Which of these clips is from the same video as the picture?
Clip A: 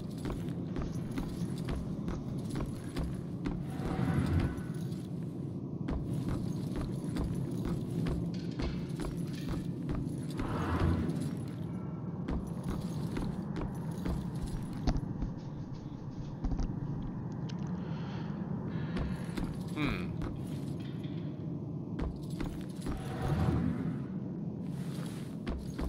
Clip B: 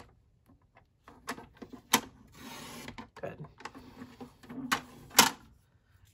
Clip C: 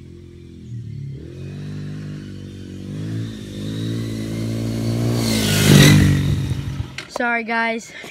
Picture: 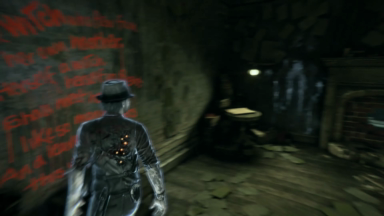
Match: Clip A